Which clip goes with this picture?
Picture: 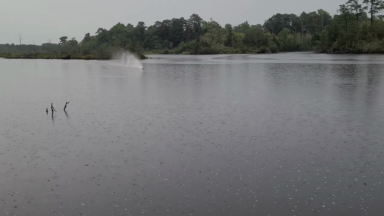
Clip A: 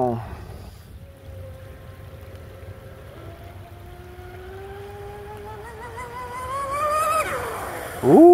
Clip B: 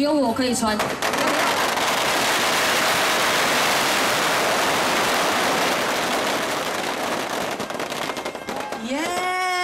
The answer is A